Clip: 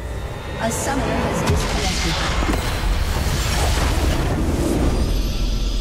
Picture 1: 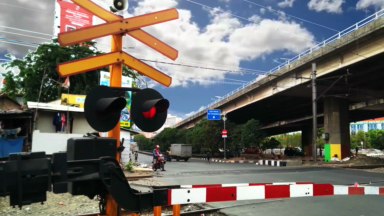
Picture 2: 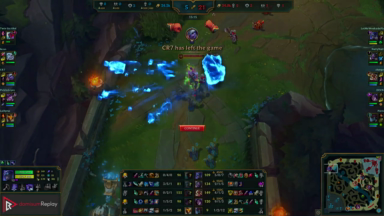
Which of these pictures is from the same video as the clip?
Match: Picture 2